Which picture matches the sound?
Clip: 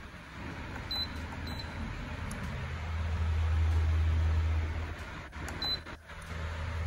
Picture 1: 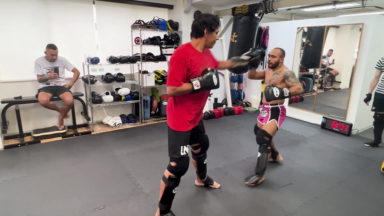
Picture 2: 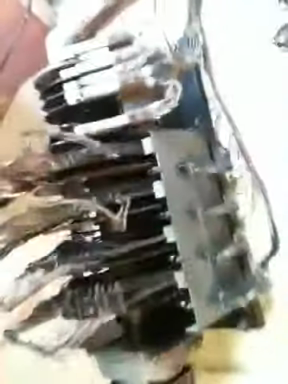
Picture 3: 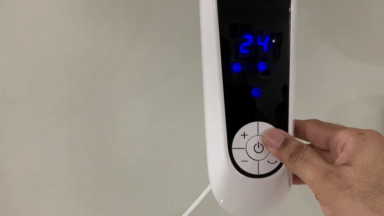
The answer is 3